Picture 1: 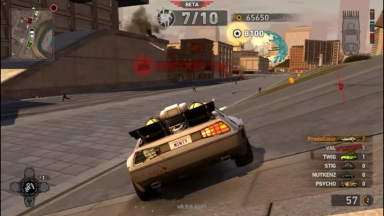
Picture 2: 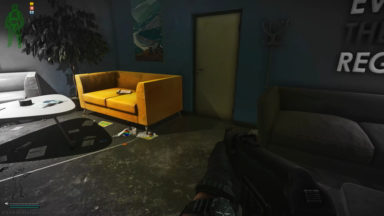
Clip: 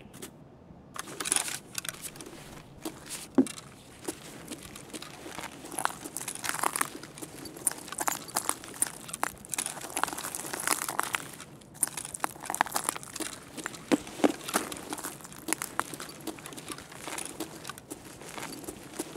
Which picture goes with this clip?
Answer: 2